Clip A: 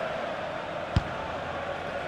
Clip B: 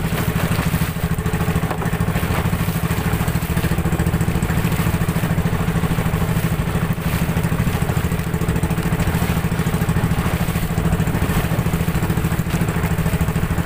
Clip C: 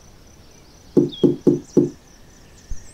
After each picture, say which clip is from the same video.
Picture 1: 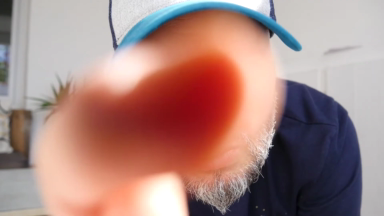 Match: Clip C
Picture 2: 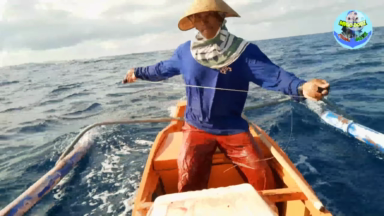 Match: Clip B